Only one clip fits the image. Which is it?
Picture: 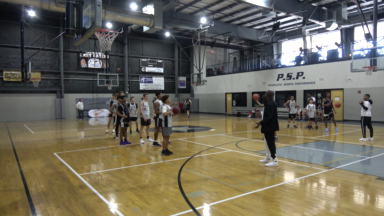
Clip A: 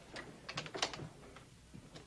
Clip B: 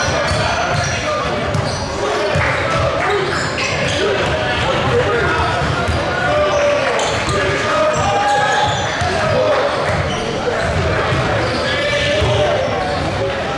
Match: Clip B